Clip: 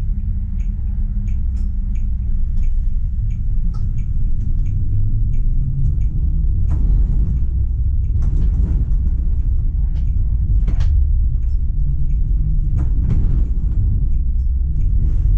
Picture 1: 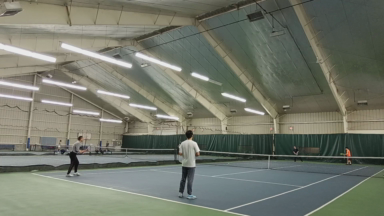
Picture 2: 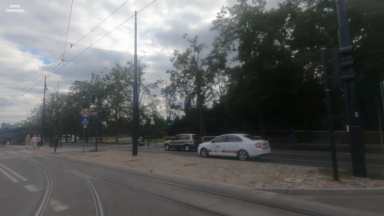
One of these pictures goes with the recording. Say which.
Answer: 2